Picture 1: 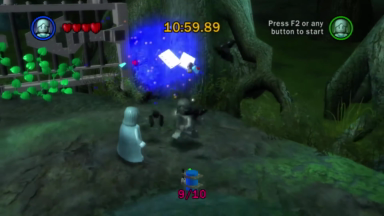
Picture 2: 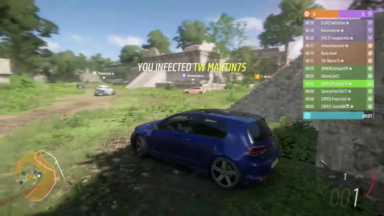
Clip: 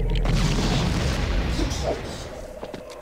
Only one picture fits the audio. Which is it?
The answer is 1